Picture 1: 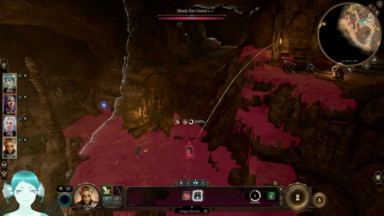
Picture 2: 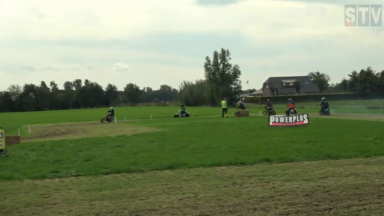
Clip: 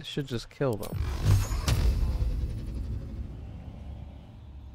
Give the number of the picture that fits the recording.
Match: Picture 1